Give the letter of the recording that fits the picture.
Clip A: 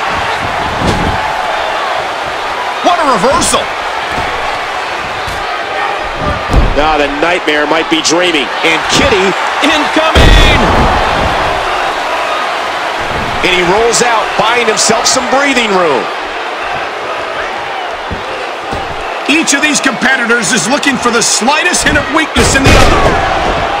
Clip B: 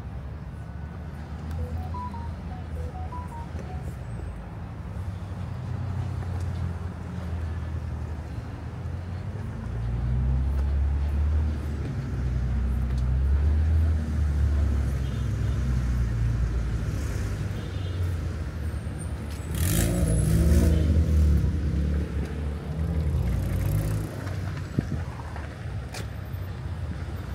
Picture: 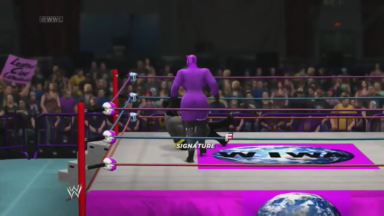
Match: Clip A